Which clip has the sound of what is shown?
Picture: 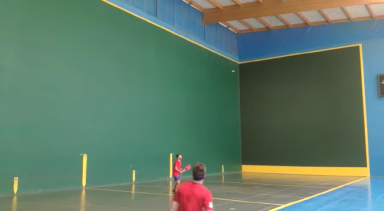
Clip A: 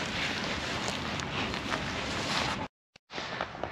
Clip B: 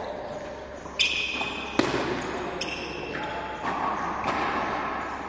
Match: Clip B